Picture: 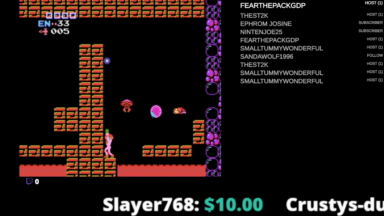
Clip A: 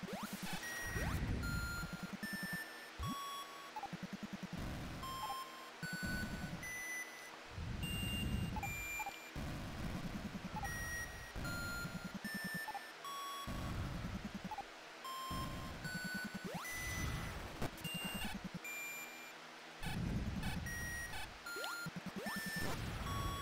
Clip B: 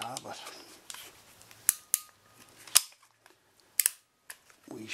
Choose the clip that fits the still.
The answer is A